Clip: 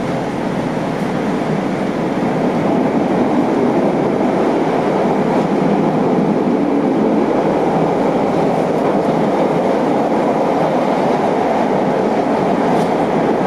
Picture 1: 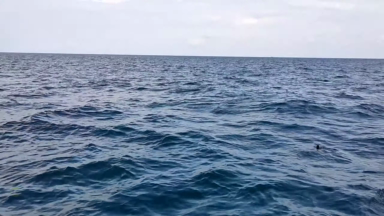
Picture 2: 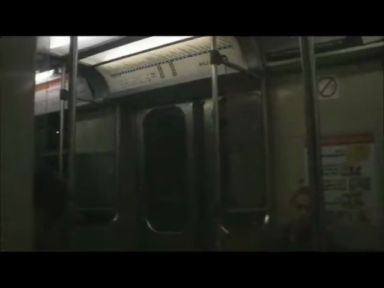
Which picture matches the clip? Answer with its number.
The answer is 2